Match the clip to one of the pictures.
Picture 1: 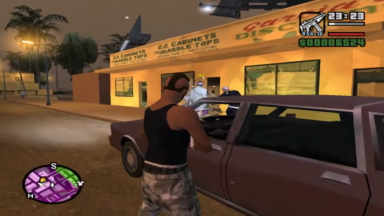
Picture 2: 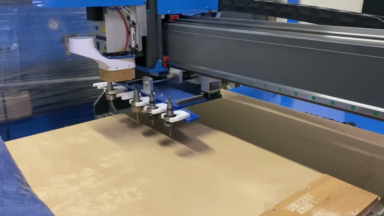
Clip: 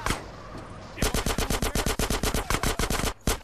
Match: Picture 1